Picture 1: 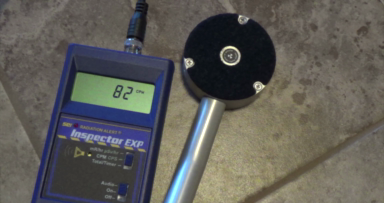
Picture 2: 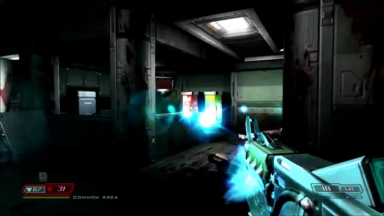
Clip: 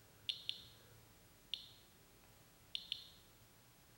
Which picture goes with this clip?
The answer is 1